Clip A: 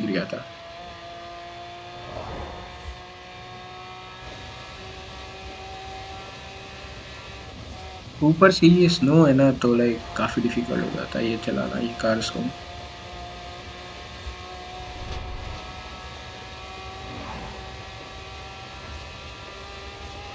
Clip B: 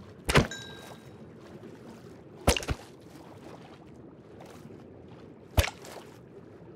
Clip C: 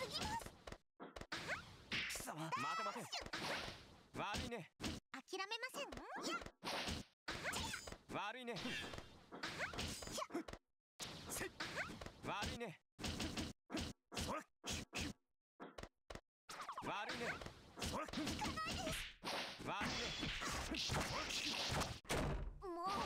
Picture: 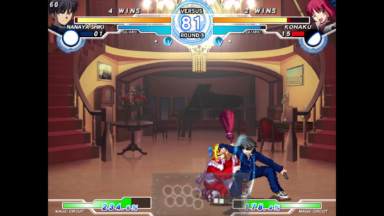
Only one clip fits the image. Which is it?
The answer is C